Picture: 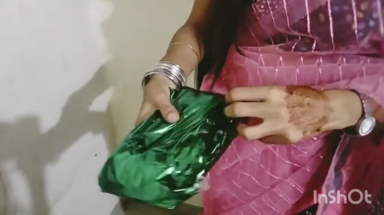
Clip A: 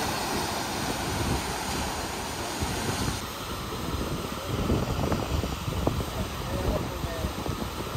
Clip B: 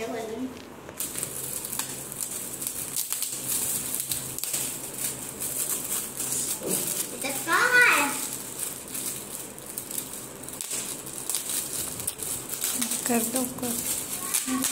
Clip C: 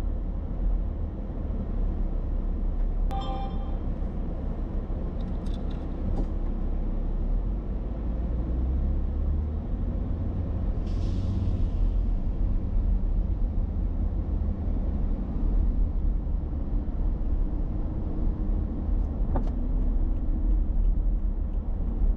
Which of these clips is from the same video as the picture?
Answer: B